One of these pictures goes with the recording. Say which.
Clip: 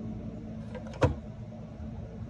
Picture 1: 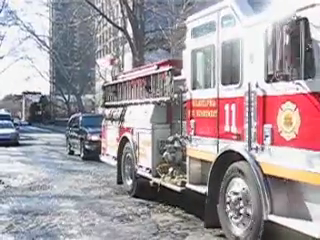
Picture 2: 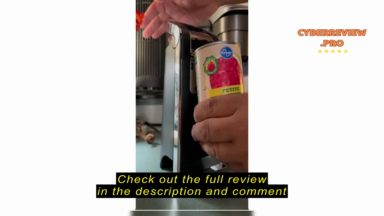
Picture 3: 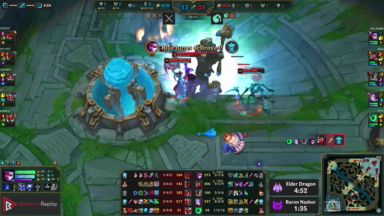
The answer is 2